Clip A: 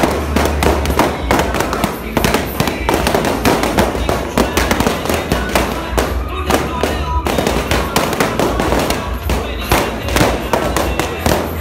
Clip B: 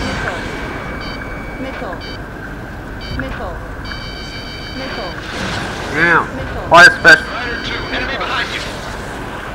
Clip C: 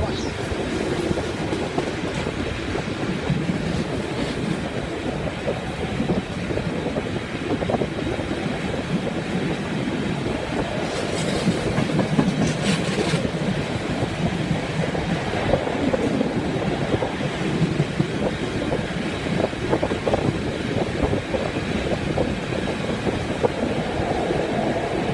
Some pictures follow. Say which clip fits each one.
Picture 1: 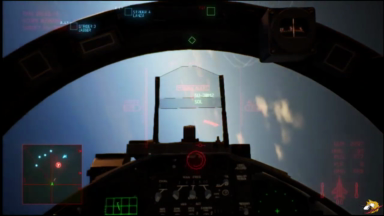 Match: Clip B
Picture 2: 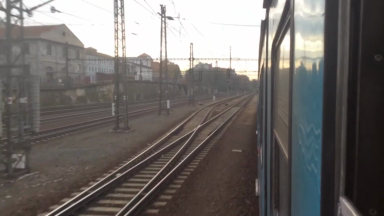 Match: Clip C